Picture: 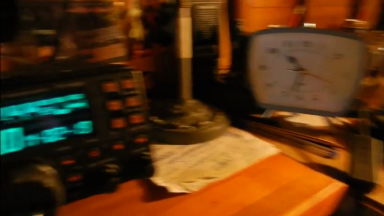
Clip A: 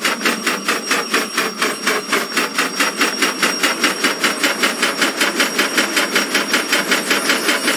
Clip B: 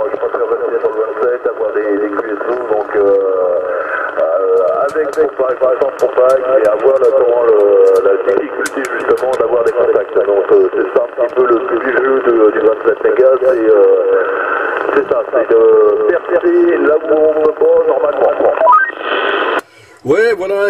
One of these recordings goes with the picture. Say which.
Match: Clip B